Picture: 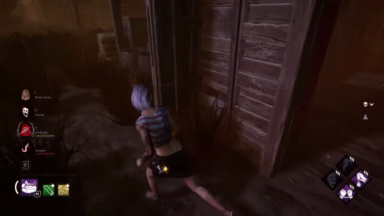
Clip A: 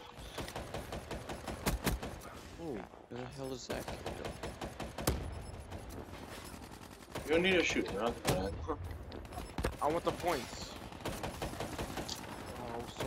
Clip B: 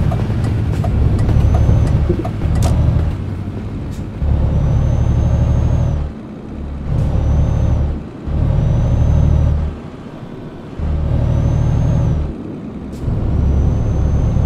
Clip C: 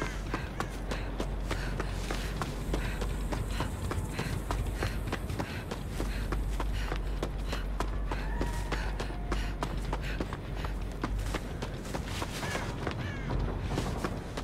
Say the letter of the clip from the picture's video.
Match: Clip C